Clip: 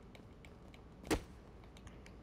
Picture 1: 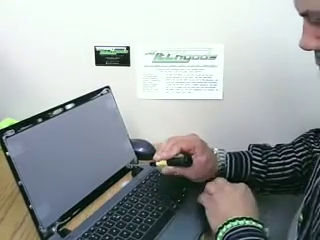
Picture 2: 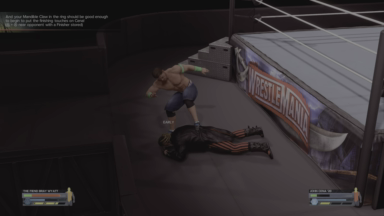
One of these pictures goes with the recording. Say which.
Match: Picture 2